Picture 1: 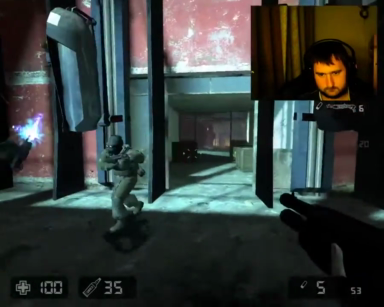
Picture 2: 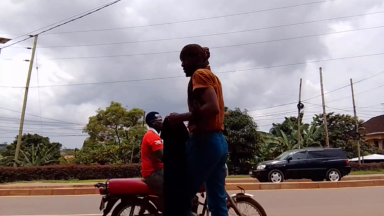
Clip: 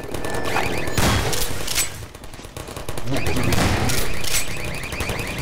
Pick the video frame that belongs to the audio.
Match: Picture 1